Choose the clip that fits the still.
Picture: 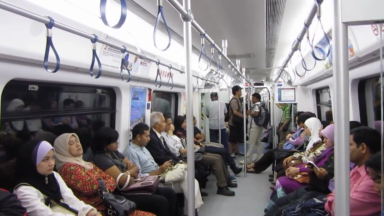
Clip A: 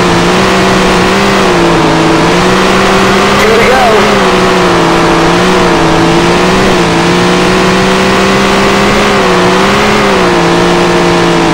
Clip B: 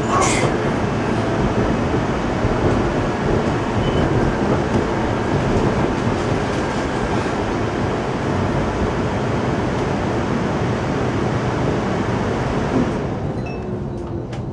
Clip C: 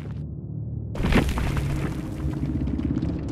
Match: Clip B